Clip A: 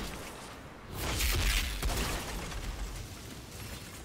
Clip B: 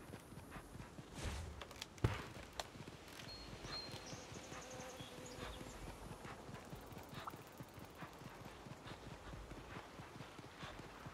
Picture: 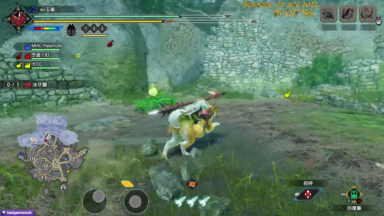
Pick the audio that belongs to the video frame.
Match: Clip B